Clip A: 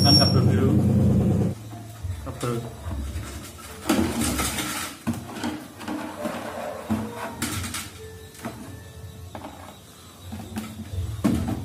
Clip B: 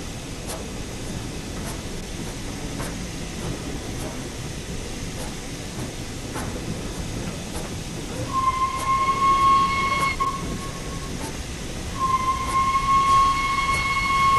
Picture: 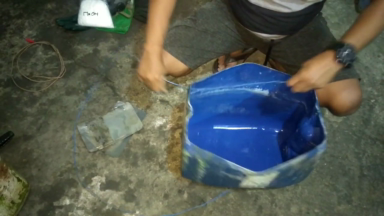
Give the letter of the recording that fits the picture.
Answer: A